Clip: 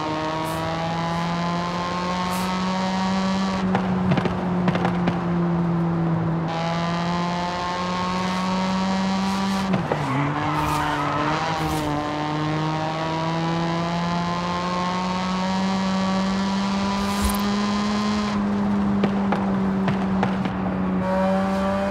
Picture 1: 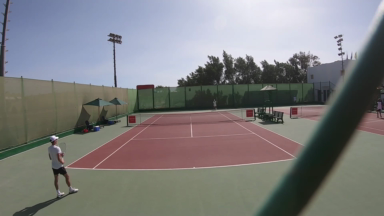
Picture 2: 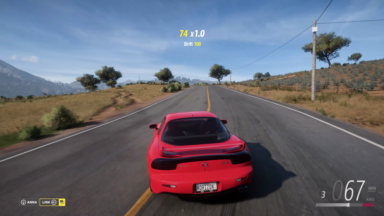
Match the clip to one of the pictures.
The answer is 2